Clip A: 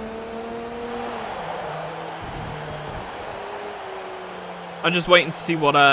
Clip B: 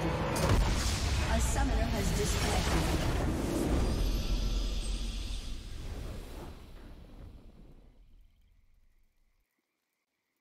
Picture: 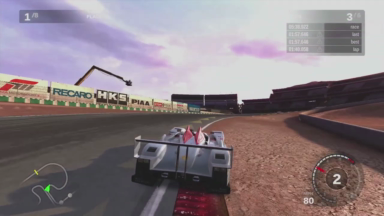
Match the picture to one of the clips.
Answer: A